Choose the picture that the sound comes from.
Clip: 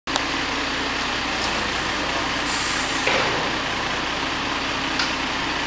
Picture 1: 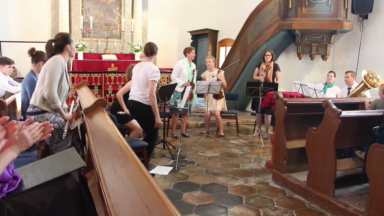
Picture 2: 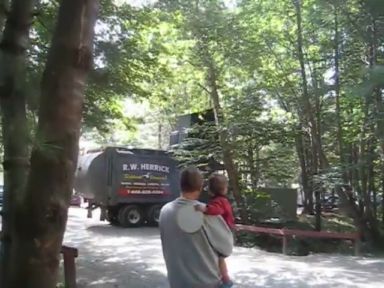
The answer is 2